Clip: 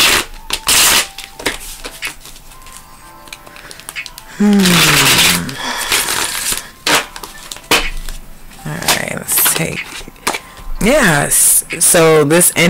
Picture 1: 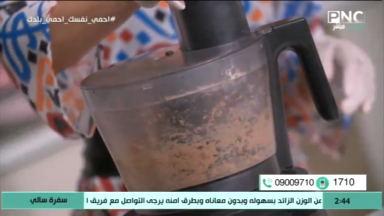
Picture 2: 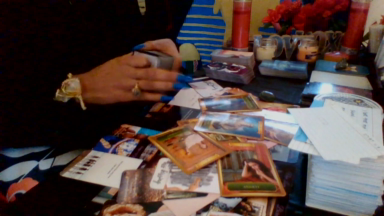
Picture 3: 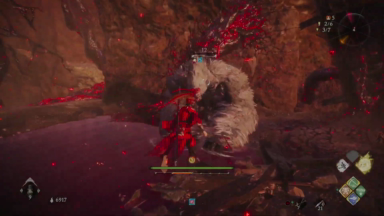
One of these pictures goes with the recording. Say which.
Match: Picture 2